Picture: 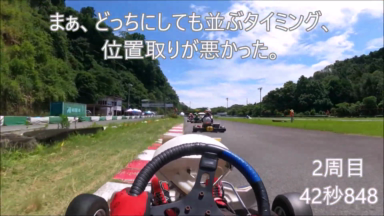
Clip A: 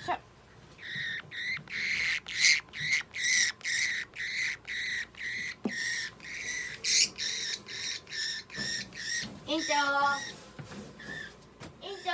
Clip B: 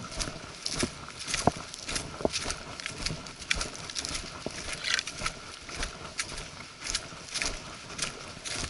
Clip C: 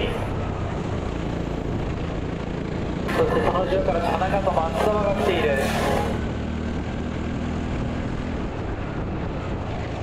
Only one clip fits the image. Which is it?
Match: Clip C